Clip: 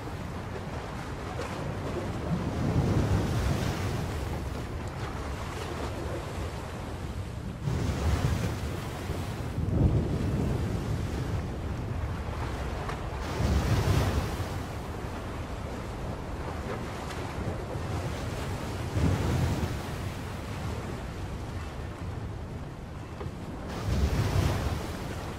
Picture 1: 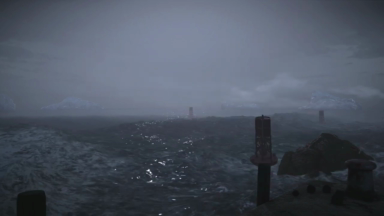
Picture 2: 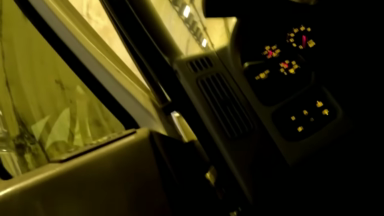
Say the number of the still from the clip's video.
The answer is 1